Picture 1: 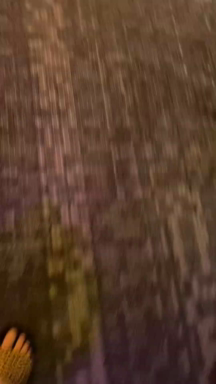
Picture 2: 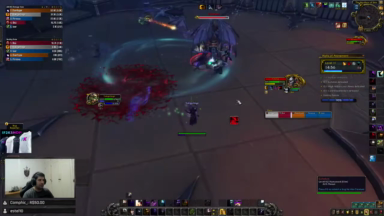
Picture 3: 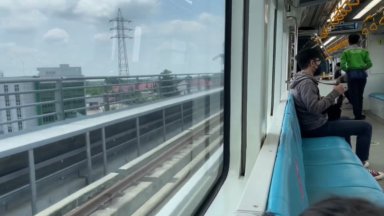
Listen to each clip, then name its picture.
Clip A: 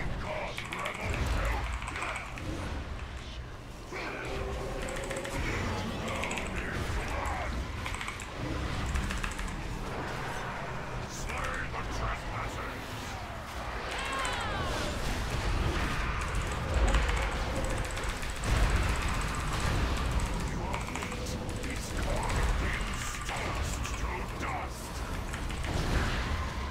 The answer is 2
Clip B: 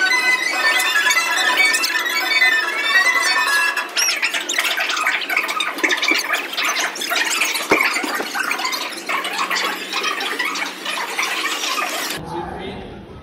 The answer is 1